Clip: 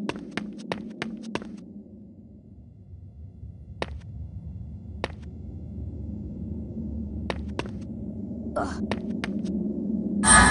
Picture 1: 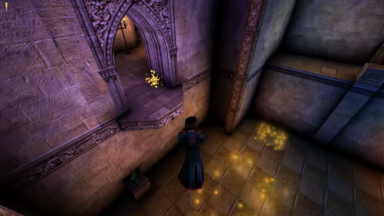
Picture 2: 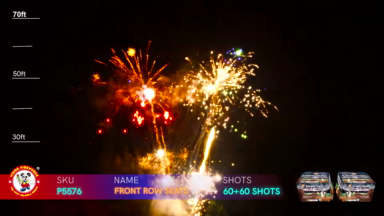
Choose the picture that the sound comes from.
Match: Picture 1